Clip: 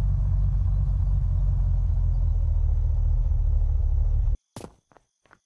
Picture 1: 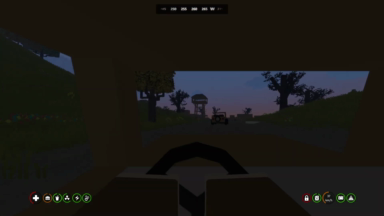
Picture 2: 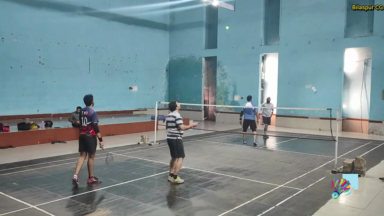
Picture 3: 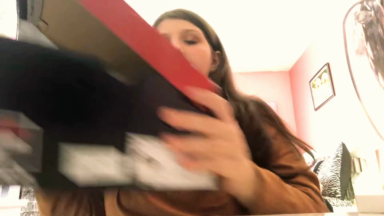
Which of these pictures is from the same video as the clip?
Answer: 1